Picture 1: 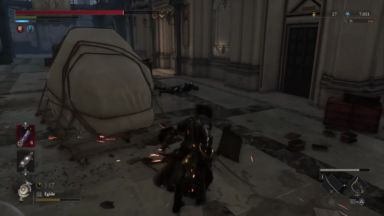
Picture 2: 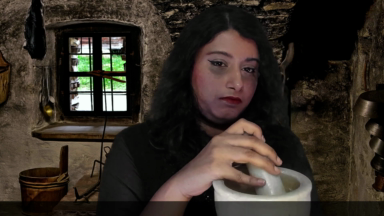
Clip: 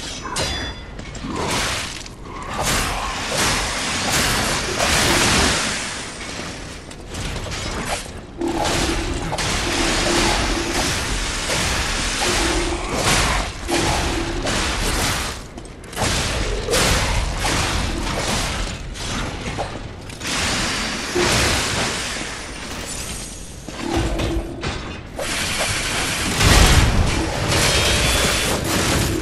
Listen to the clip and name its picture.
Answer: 1